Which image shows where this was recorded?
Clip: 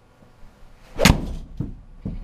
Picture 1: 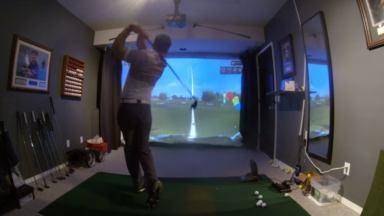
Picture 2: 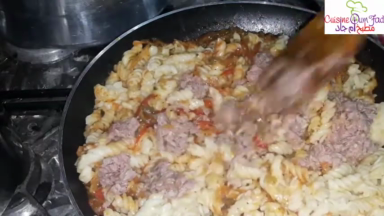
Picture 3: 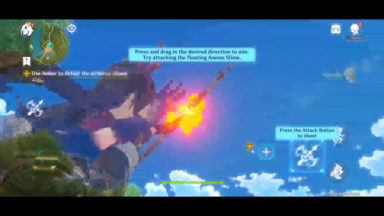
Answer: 1